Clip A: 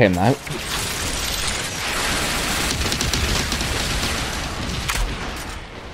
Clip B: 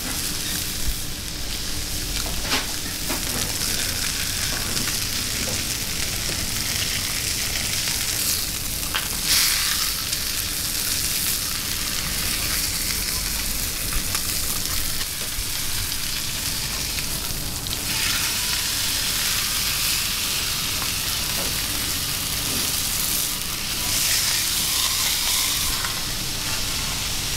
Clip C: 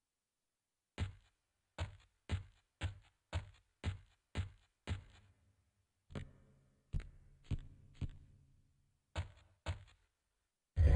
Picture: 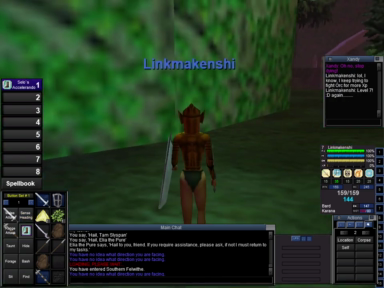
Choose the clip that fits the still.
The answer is C